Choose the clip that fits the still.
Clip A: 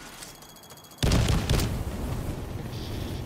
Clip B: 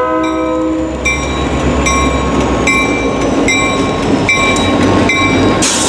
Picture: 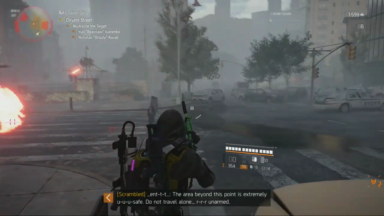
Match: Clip A